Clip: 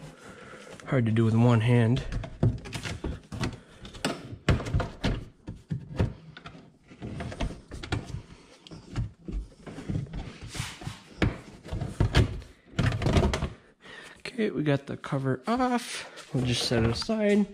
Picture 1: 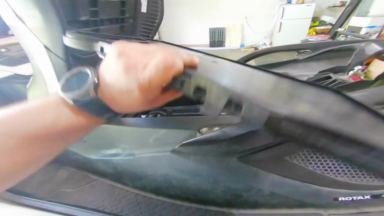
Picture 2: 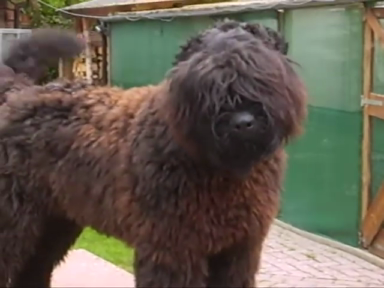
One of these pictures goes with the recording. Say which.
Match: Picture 1